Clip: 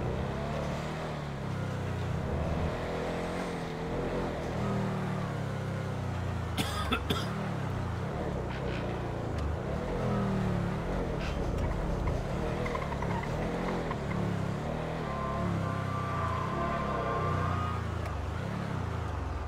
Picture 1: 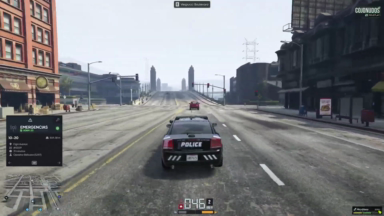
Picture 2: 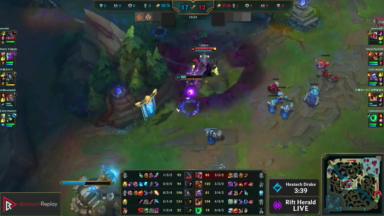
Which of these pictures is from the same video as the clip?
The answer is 1